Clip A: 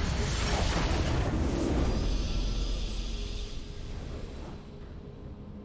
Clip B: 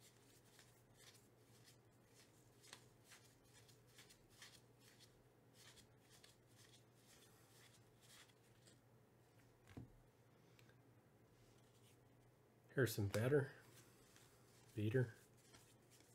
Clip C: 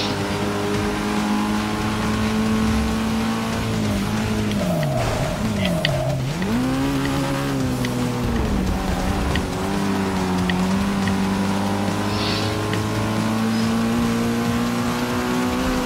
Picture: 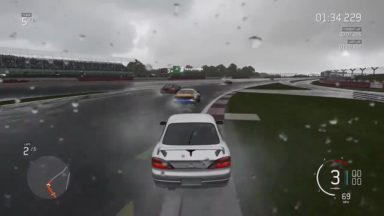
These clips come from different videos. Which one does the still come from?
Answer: C